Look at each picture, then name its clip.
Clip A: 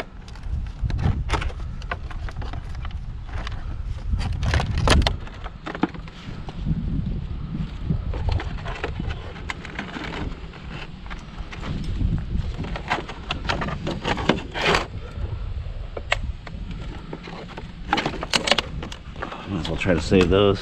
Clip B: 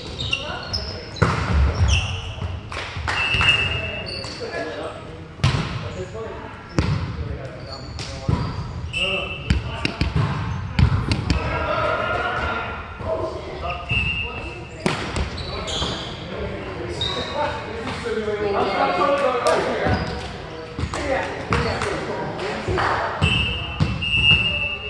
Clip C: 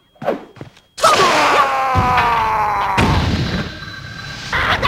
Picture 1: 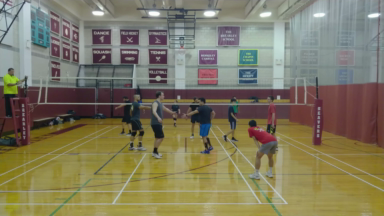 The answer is B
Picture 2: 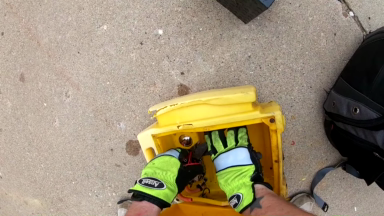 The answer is A